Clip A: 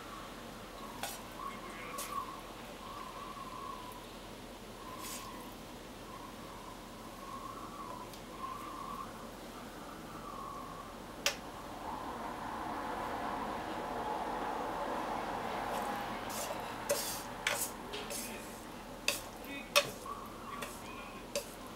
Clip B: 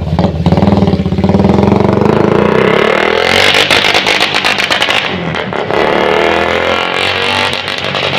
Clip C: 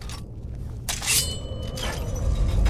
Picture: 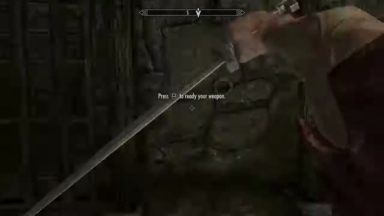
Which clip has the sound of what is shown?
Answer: C